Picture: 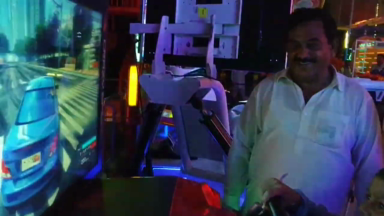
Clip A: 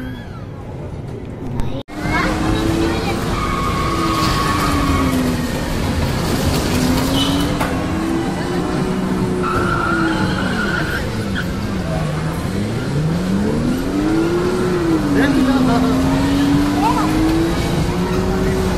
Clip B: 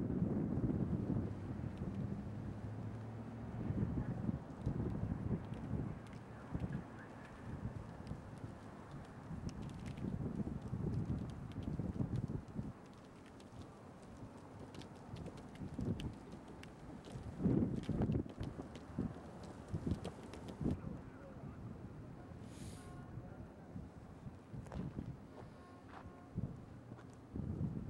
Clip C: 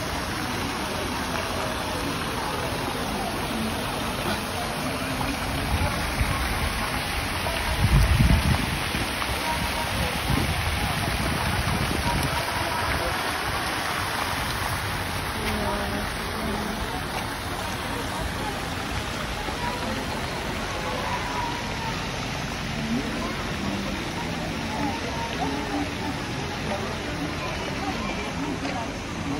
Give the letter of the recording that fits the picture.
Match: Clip A